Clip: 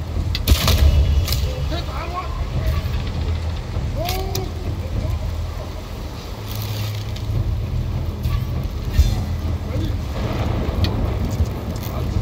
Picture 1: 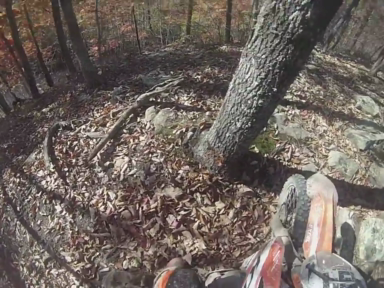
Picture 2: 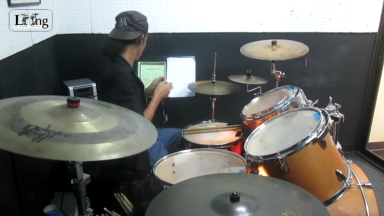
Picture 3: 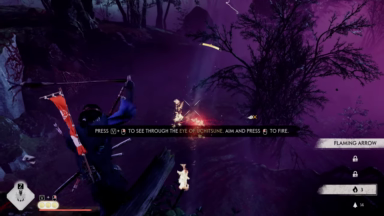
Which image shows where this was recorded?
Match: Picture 3